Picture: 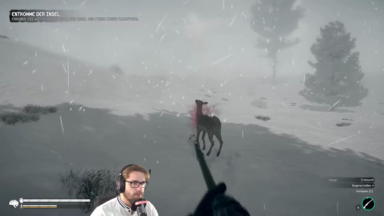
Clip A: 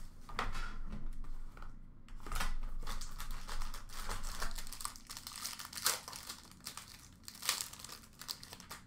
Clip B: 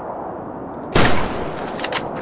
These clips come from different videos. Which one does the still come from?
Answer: B